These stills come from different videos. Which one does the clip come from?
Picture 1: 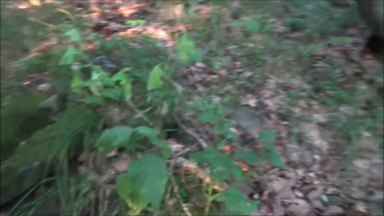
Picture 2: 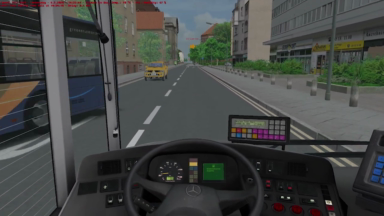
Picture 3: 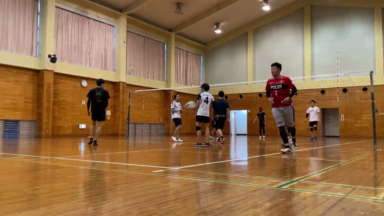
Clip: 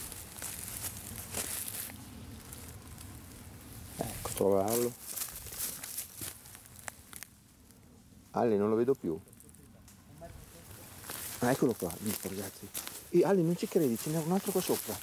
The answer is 1